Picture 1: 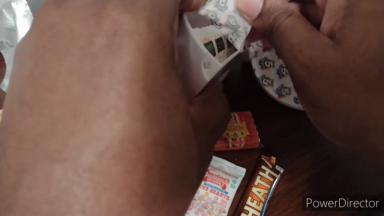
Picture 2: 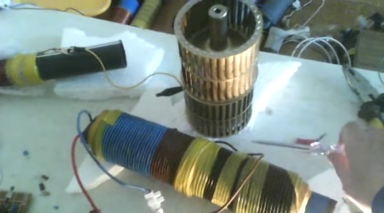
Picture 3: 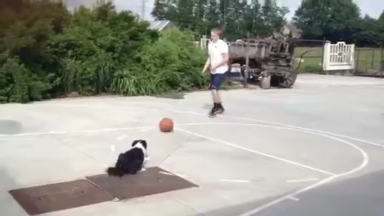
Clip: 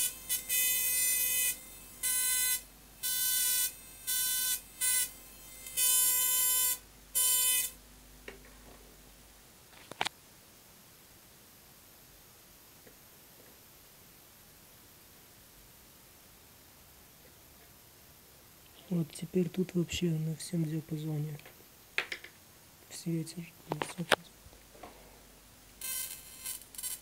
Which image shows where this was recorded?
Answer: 2